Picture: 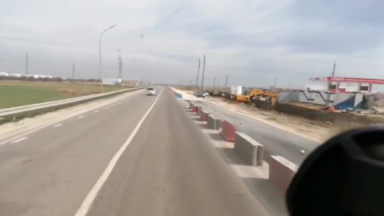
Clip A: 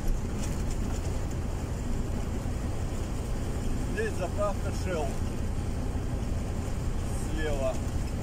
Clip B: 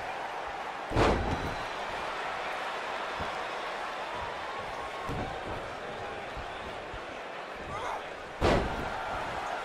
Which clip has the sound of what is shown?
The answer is A